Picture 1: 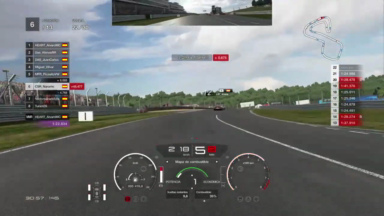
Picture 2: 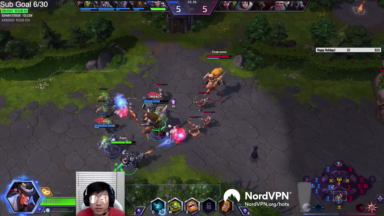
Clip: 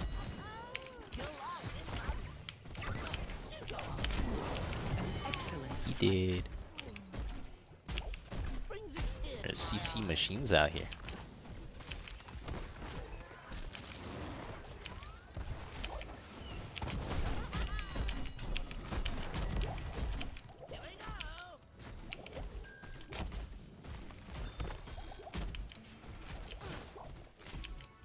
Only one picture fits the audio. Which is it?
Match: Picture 2